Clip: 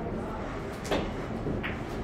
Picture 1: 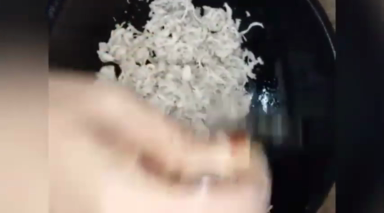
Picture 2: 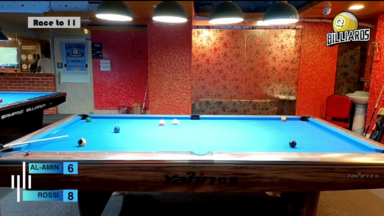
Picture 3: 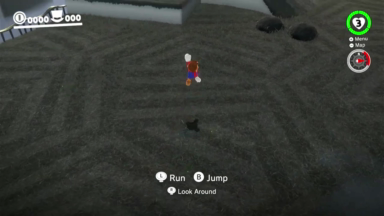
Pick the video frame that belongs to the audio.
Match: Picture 2